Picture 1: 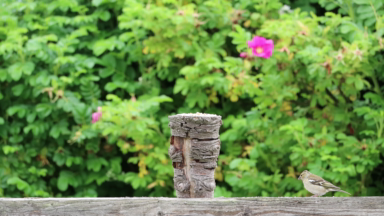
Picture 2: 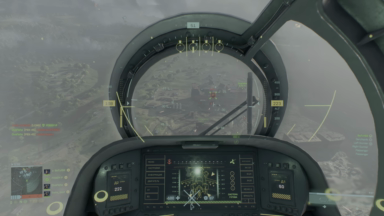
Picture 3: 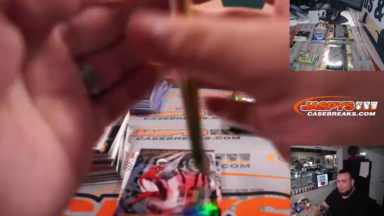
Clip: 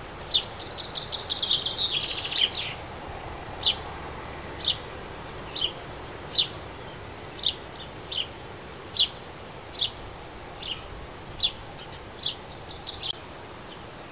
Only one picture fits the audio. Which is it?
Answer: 1